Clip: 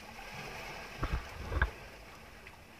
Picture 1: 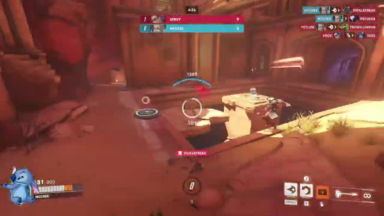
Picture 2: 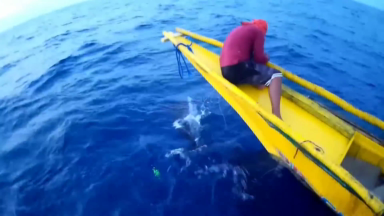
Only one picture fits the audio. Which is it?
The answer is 2